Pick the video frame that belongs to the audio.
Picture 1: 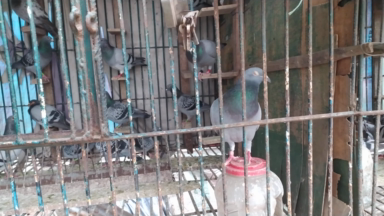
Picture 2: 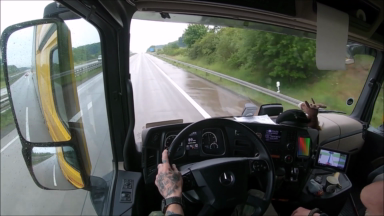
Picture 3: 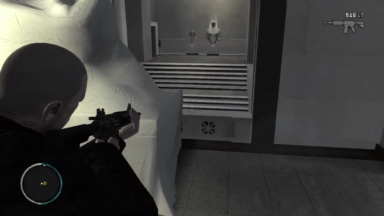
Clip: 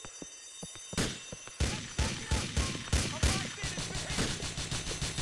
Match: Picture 3